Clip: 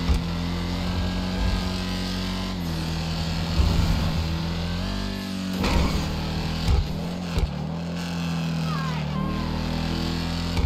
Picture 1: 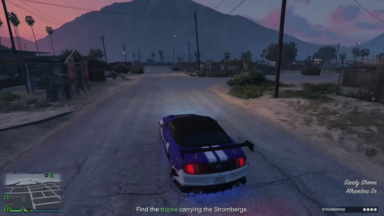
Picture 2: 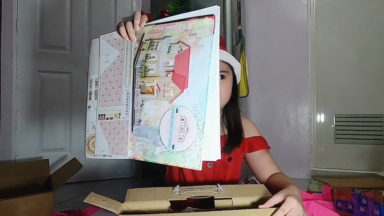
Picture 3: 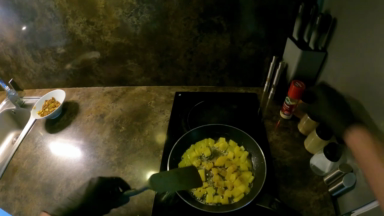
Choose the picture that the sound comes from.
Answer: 1